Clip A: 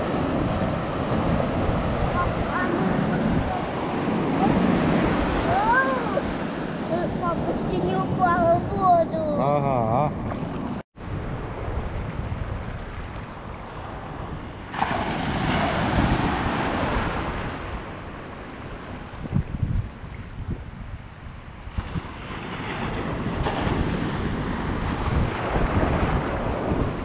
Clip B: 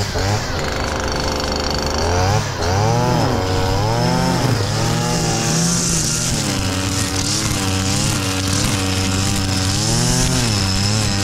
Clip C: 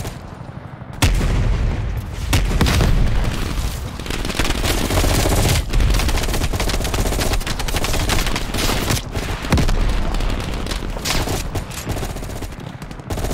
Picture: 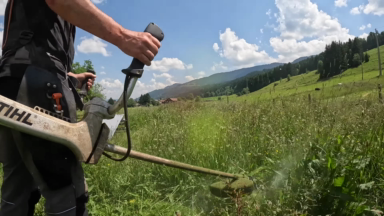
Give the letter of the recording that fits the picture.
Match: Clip B